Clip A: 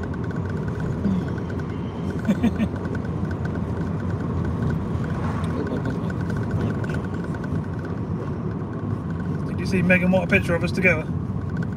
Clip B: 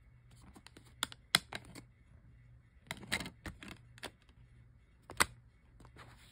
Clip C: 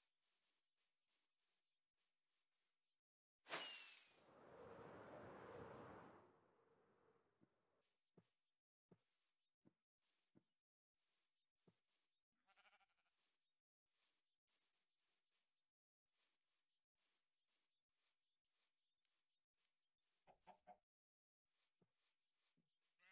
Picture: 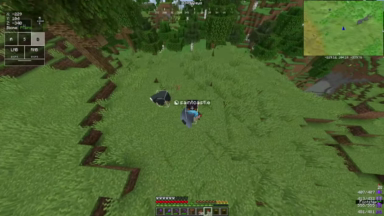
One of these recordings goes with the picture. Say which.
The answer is C